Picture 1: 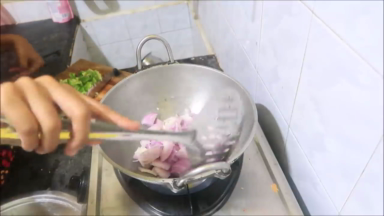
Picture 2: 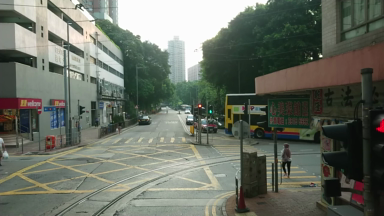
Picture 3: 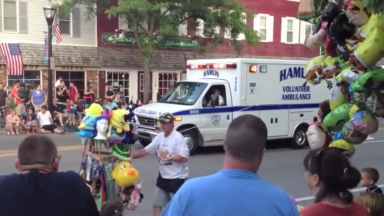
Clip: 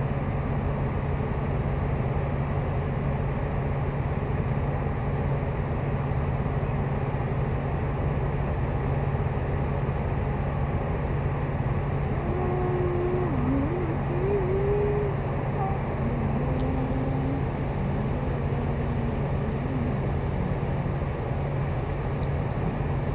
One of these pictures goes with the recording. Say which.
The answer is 2